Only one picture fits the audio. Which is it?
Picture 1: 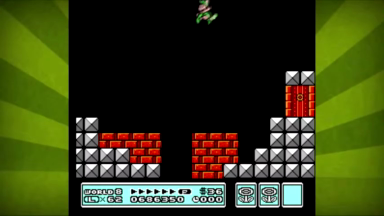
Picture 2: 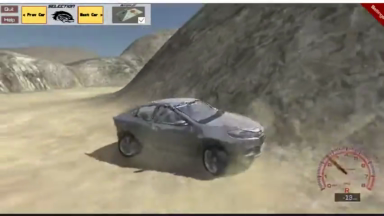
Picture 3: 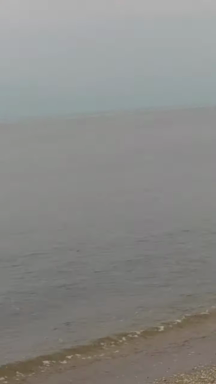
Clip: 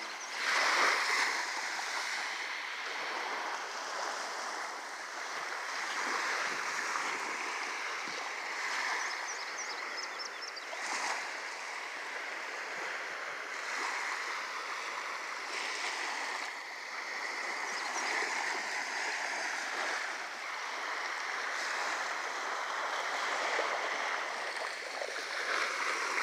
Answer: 3